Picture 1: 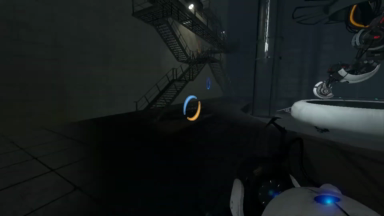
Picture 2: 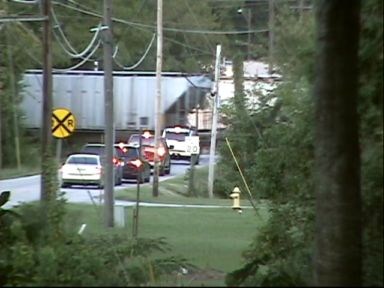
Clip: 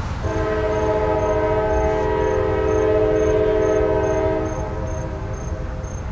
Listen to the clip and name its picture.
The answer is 2